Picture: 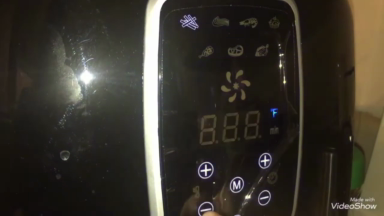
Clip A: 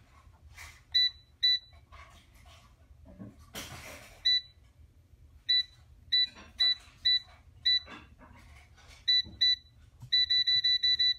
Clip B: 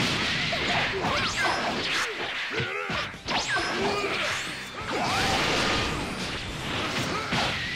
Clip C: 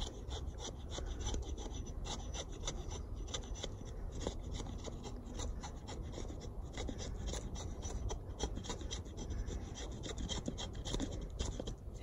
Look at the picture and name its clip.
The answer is A